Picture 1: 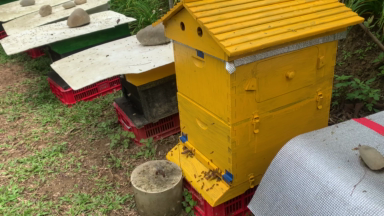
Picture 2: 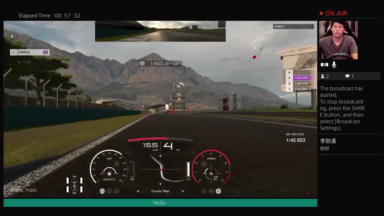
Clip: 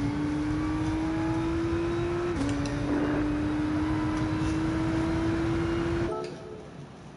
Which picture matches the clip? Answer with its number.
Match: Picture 2